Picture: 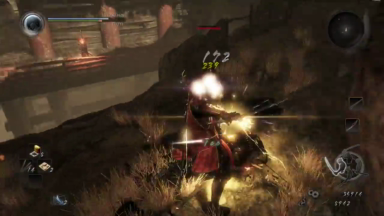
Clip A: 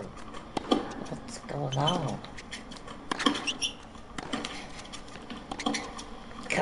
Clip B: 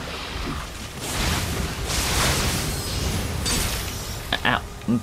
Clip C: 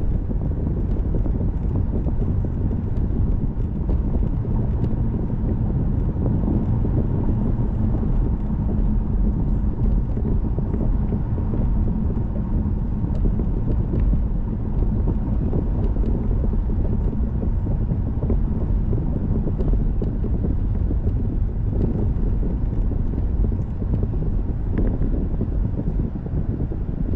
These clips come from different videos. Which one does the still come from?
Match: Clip B